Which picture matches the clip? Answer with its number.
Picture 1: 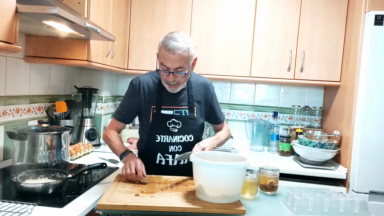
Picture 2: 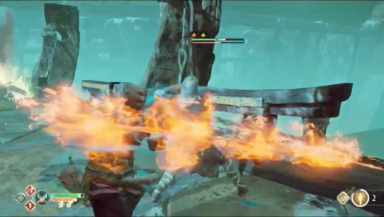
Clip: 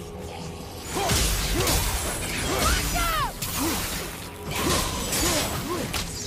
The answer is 2